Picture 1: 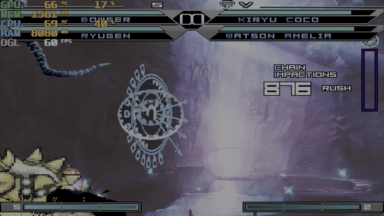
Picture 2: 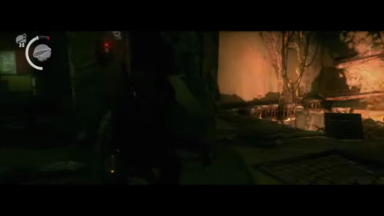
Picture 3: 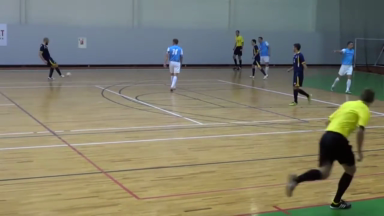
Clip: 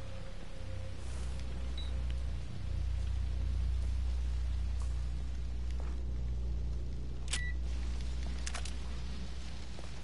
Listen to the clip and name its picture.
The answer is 2